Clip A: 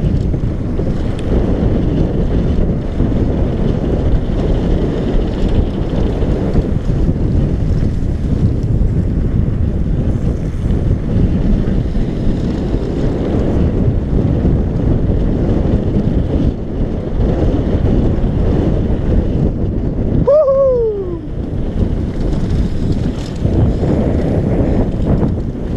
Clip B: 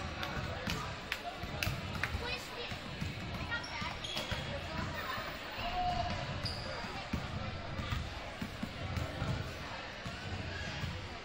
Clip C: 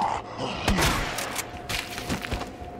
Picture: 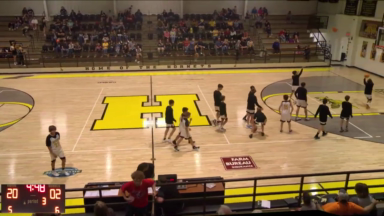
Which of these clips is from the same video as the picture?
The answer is B